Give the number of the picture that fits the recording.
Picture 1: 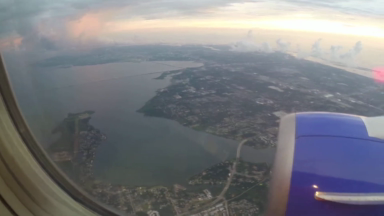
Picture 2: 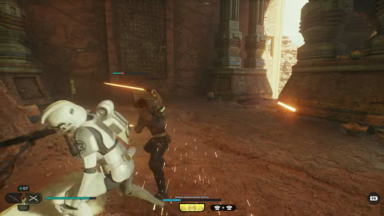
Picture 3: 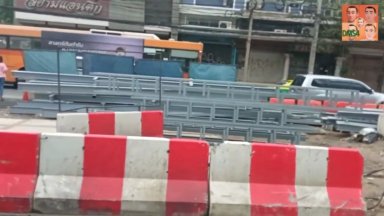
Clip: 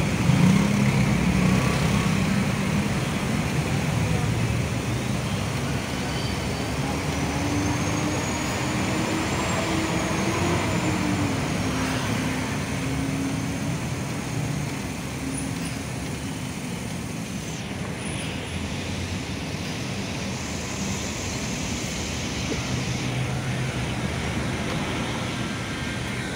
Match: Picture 3